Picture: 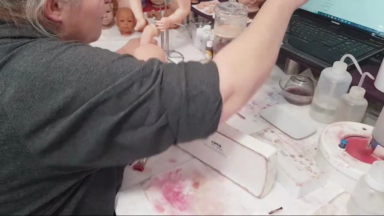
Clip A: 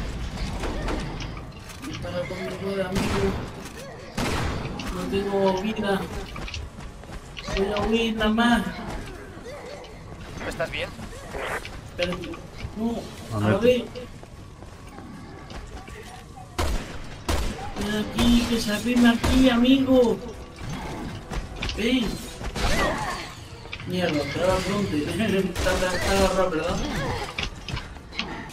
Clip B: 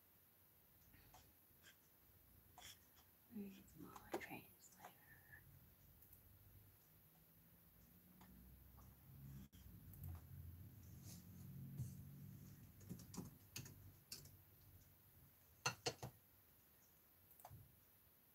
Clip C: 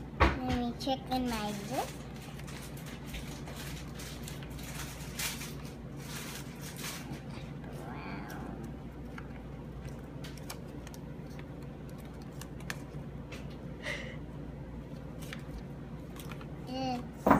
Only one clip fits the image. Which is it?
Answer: B